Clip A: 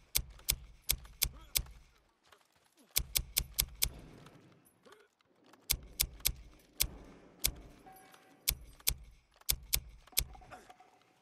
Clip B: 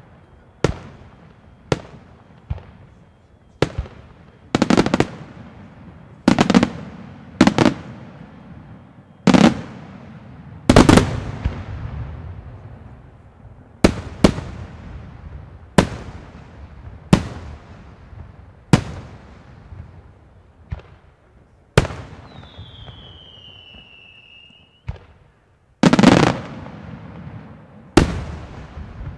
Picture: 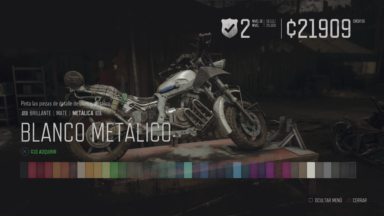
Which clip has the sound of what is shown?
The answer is A